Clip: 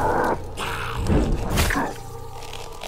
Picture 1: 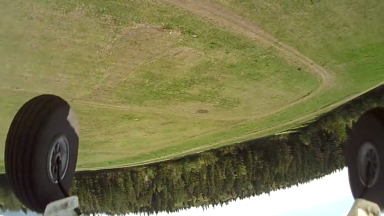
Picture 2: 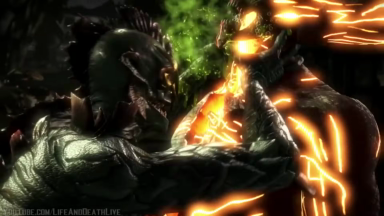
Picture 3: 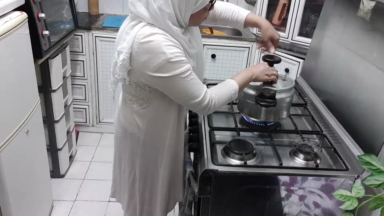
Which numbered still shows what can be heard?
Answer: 2